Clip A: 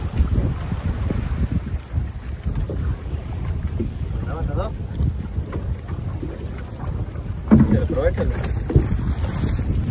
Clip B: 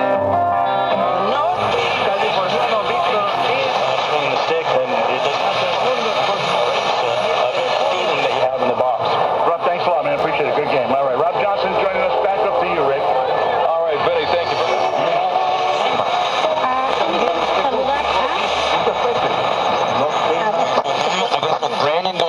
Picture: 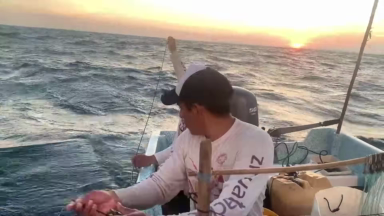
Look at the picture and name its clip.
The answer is A